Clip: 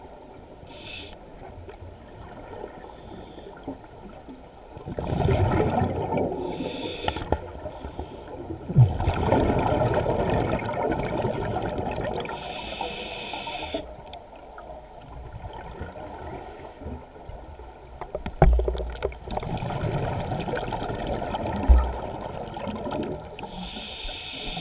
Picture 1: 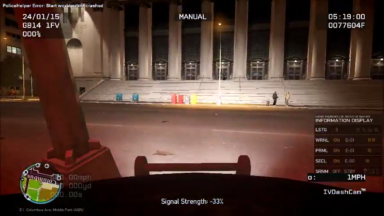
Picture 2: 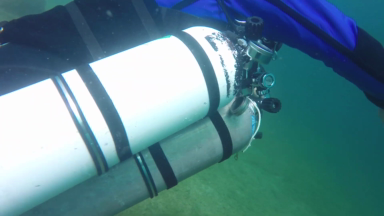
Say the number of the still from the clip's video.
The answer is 2